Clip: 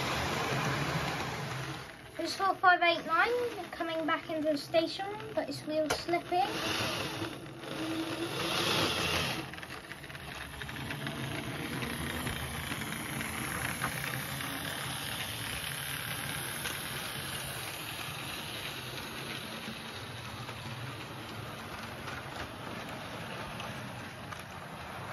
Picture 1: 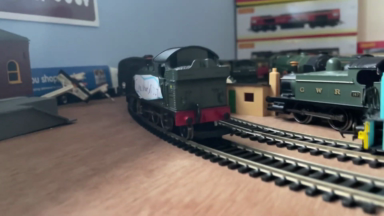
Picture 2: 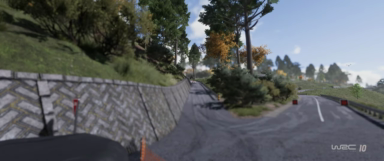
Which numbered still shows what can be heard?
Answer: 1